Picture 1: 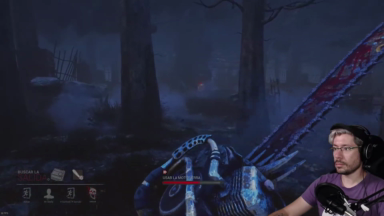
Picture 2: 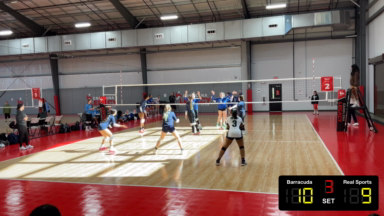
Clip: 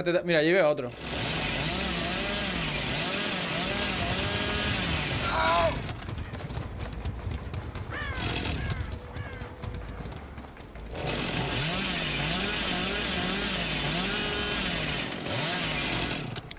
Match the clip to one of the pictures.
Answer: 1